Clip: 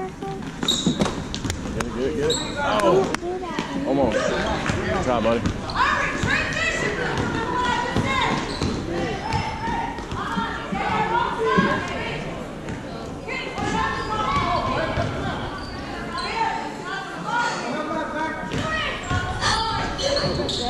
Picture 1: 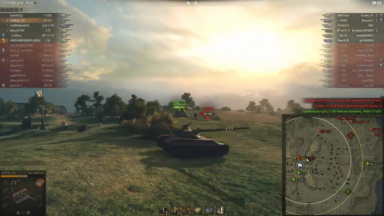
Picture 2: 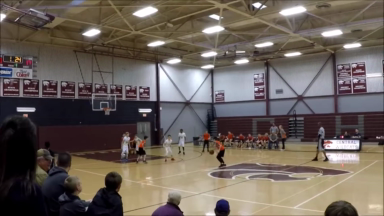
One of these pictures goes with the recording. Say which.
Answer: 2